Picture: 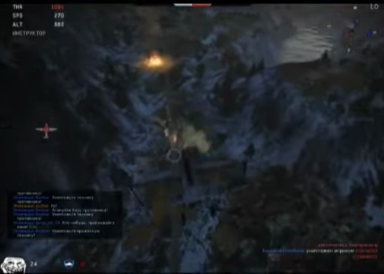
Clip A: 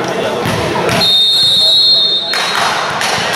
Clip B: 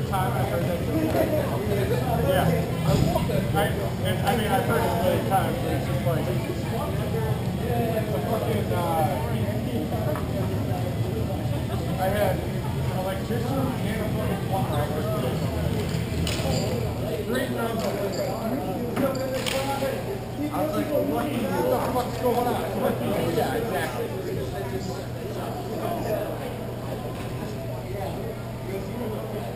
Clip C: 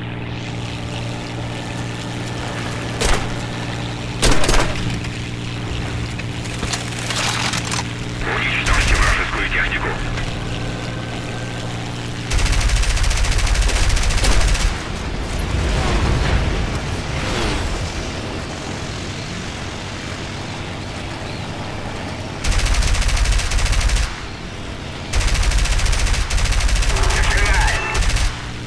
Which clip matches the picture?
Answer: C